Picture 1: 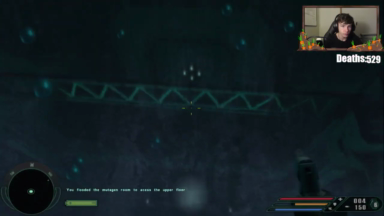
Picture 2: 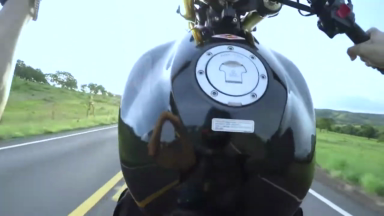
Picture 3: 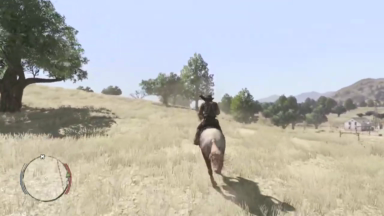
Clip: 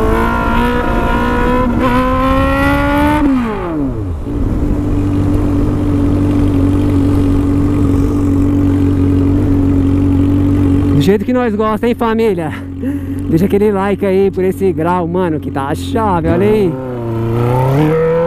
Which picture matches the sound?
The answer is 2